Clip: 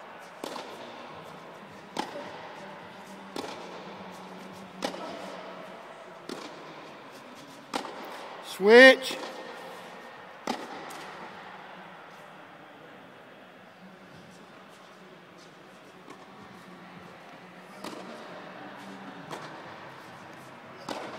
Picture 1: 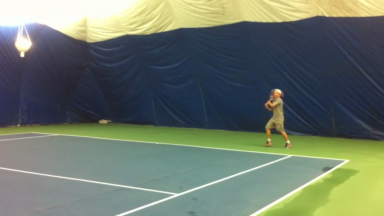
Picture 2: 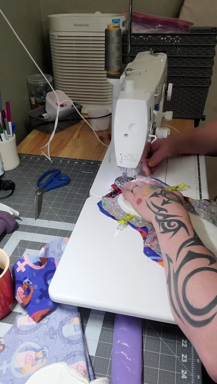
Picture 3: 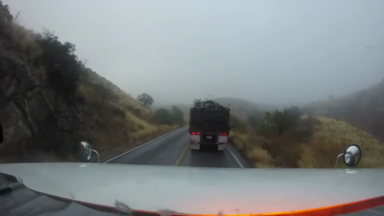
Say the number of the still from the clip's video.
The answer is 1